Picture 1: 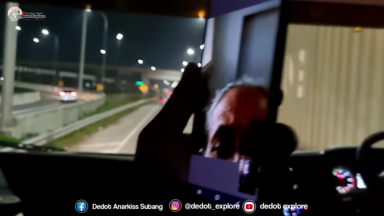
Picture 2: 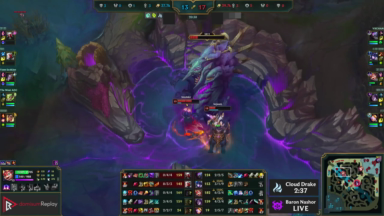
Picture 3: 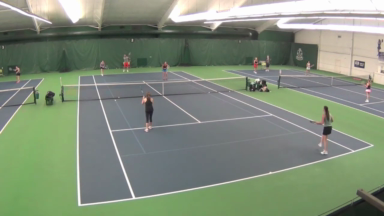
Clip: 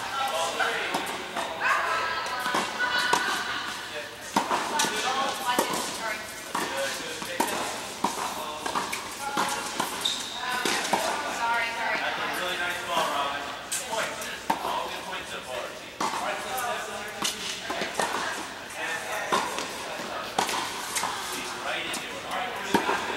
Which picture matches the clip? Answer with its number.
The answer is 3